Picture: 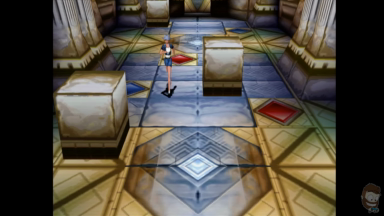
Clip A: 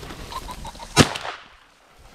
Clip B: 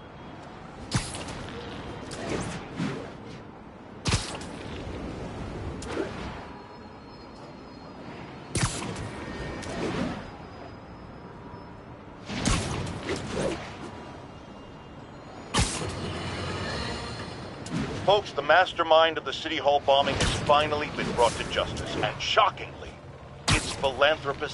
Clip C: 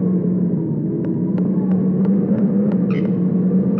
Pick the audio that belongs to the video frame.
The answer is C